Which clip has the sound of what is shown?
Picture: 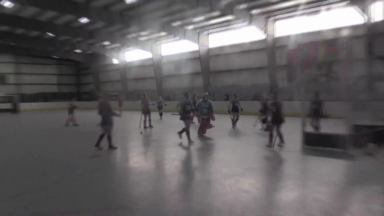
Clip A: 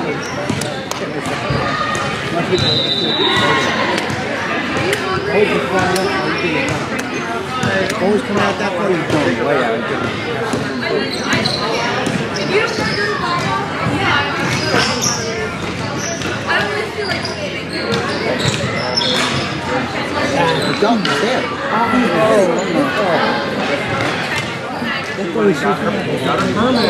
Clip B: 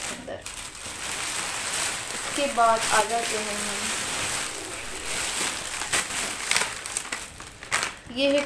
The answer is A